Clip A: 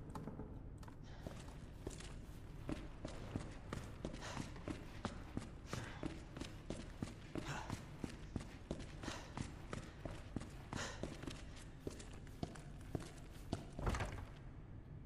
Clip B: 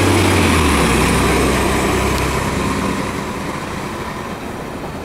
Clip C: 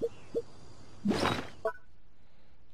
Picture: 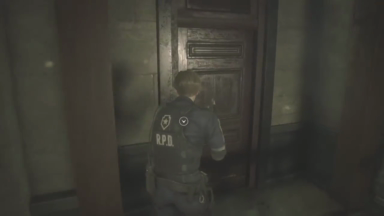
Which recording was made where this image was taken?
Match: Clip A